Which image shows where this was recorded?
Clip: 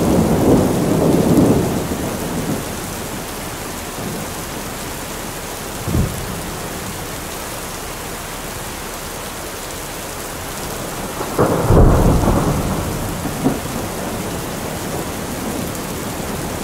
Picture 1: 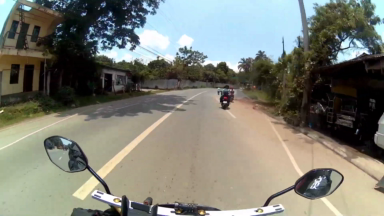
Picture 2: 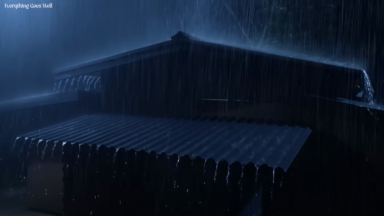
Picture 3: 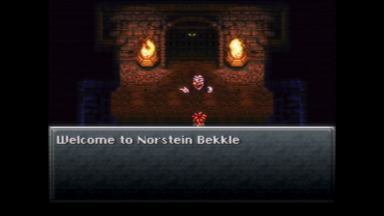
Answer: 2